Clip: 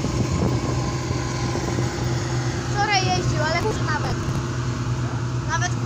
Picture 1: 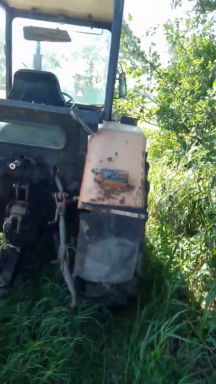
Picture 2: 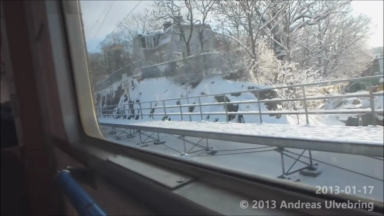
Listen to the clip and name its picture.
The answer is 1